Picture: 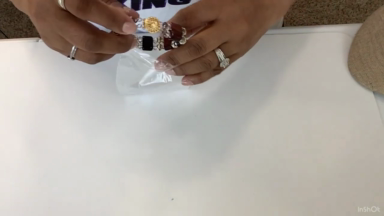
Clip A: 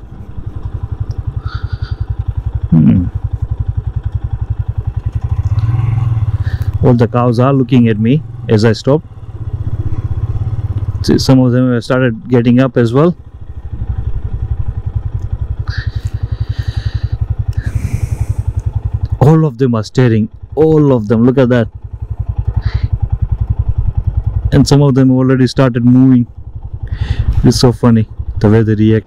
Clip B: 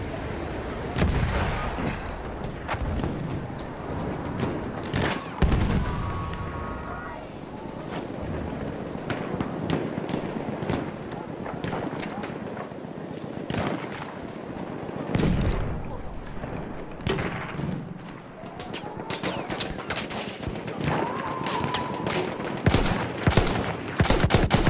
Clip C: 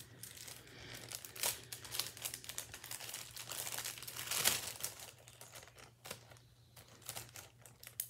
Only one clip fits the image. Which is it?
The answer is C